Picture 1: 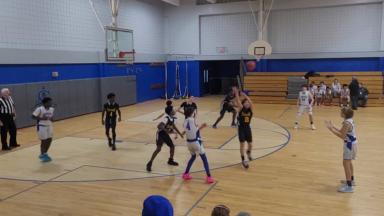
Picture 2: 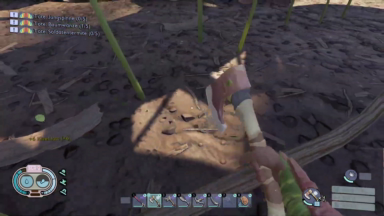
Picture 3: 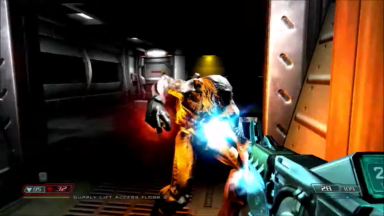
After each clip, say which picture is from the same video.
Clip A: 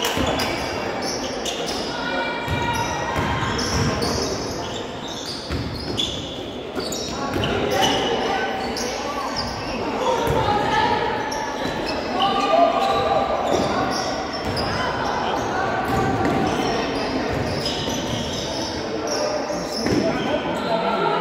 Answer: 1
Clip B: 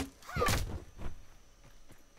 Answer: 2